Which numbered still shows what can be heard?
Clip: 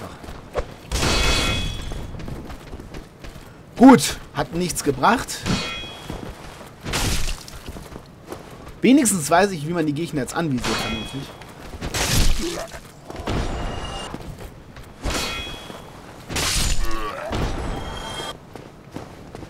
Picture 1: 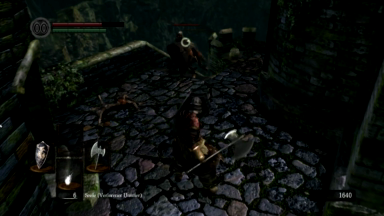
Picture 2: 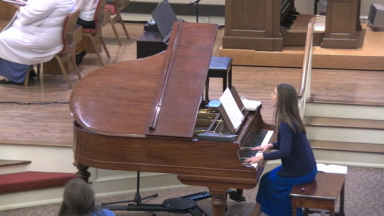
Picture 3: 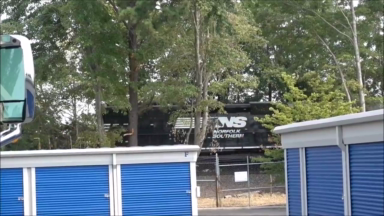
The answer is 1